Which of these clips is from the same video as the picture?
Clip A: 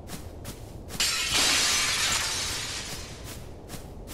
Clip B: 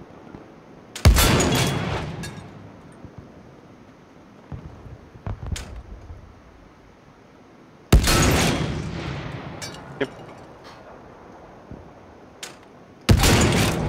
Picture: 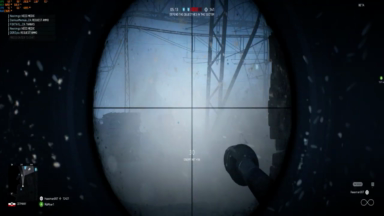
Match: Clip B